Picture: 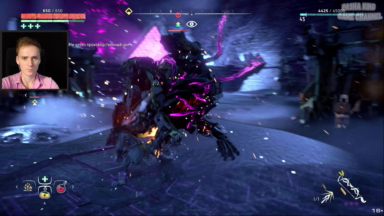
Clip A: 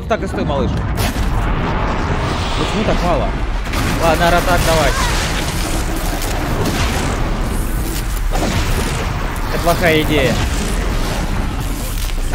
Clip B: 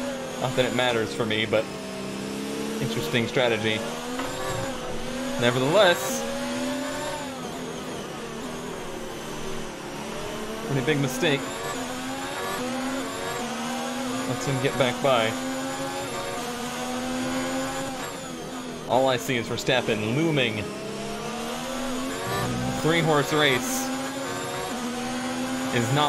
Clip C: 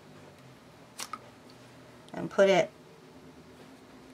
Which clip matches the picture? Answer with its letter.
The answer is A